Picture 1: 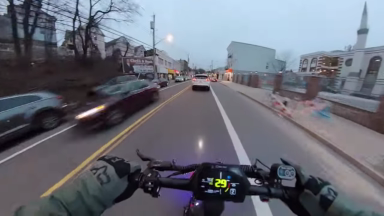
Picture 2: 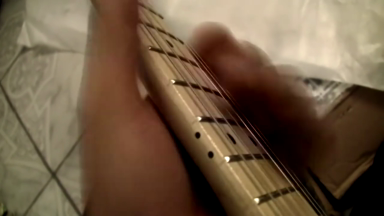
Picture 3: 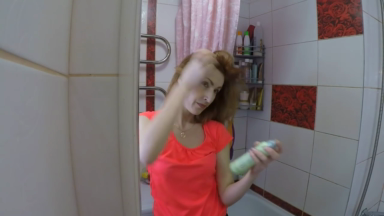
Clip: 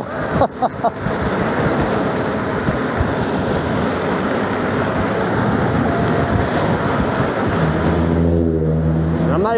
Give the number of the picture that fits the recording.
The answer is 1